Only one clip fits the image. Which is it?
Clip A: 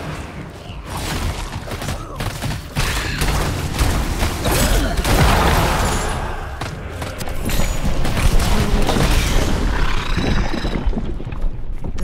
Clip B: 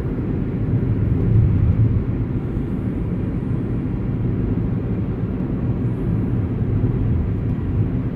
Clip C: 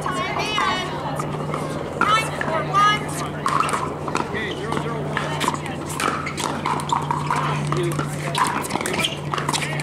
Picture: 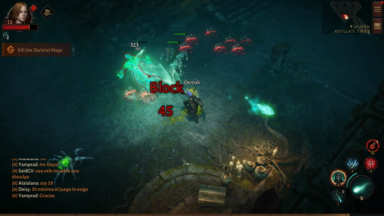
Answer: A